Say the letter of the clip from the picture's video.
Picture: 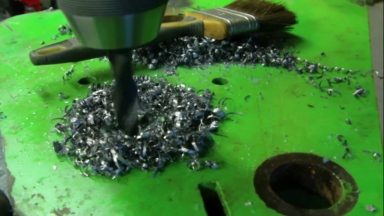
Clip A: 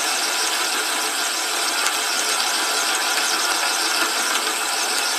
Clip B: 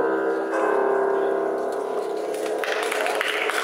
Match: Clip A